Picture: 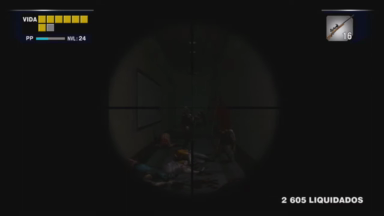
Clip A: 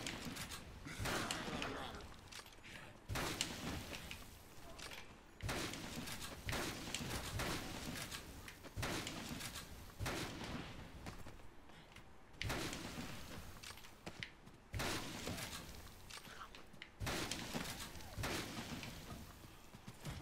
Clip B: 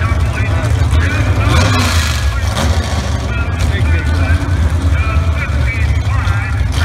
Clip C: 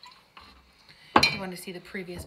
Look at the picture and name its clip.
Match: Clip A